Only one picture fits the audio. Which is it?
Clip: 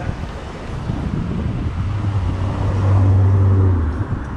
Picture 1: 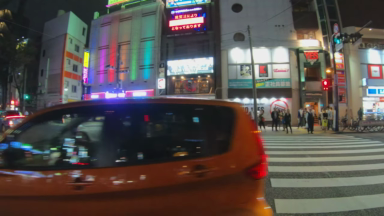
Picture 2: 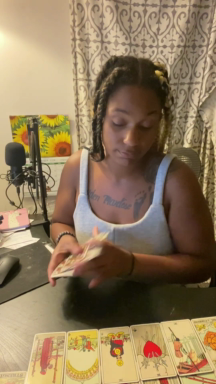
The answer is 1